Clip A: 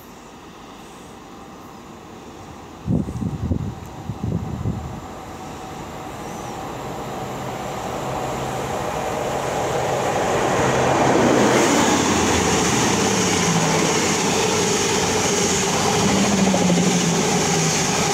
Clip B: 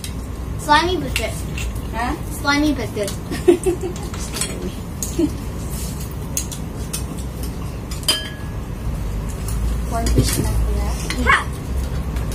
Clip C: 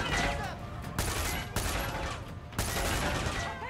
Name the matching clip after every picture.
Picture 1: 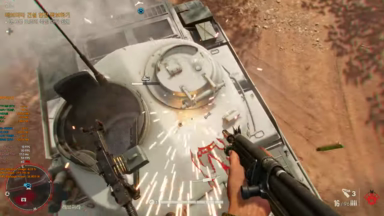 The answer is C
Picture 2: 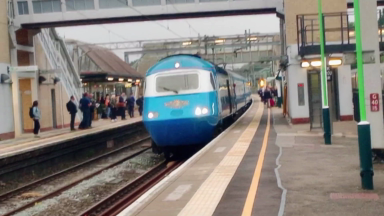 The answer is A